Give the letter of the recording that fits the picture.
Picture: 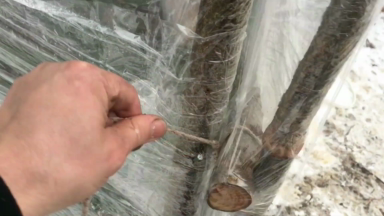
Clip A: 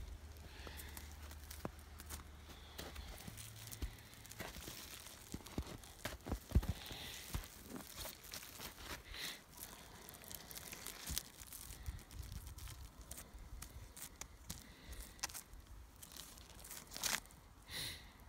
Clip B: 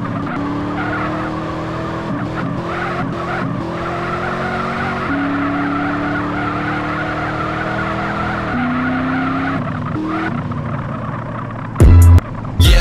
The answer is A